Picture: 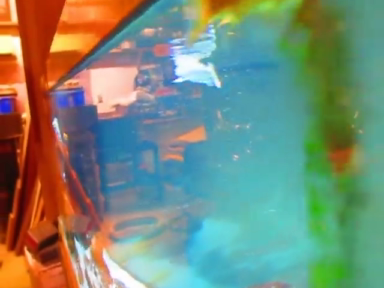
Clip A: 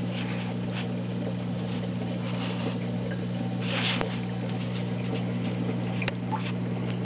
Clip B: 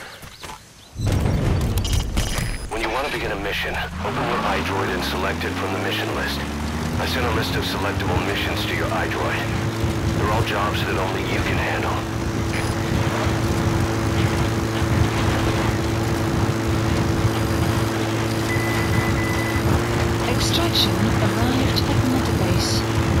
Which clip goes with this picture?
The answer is A